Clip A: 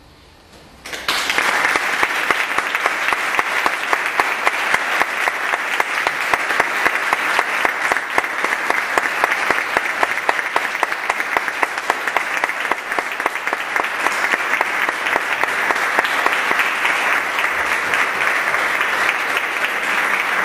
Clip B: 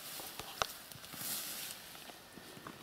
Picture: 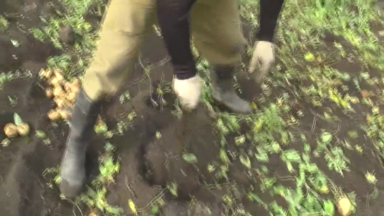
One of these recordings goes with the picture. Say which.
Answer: B